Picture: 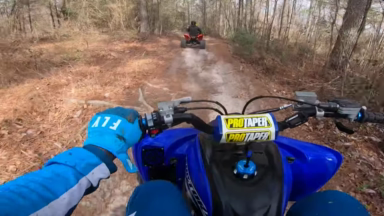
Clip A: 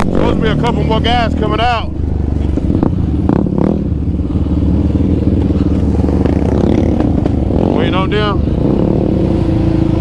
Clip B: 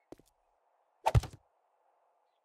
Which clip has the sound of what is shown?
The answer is A